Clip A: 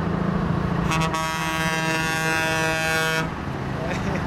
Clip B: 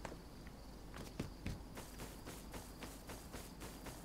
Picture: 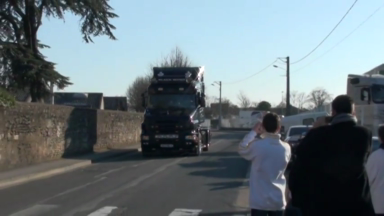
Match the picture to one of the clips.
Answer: A